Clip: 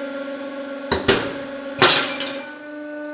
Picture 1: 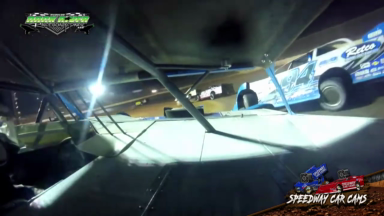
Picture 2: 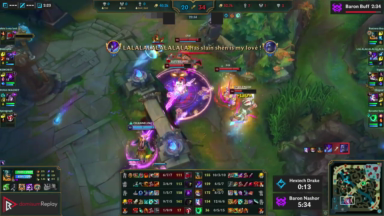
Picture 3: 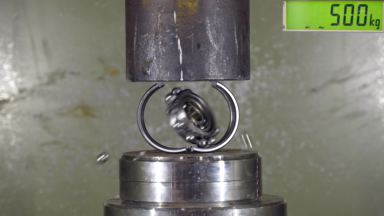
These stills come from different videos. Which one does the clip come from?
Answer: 3